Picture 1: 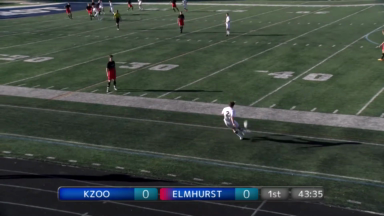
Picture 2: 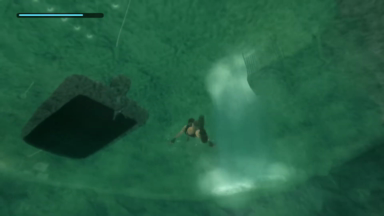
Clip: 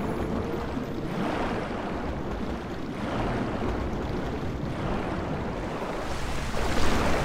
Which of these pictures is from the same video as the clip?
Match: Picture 2